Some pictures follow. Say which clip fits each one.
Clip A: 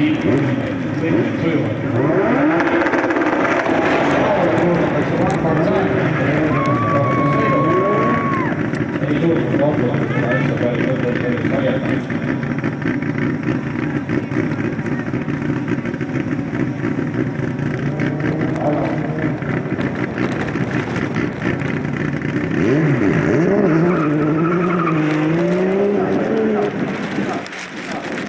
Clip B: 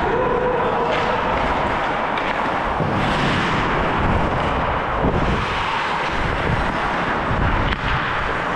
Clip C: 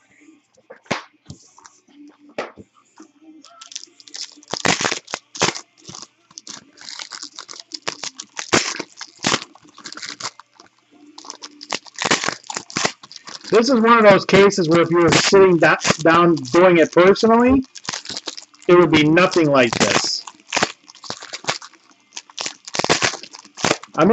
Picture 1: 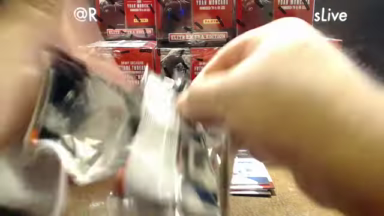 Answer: C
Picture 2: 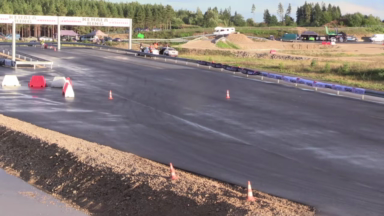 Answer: A